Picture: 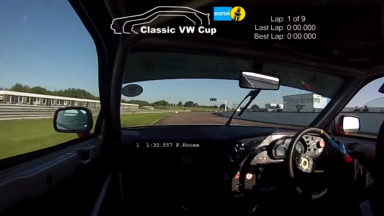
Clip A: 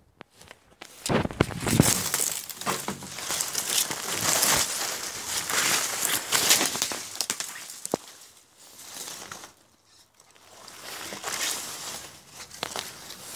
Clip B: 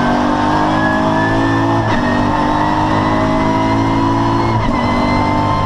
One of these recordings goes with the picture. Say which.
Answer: B